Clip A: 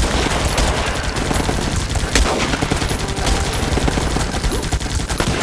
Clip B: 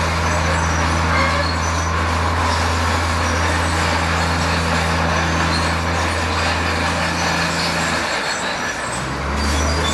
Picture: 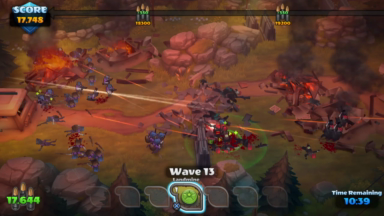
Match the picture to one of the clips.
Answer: A